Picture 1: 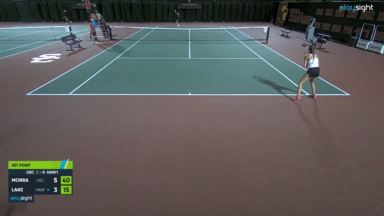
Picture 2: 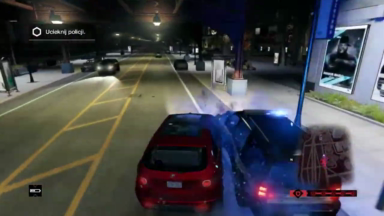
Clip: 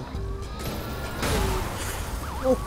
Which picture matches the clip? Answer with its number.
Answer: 2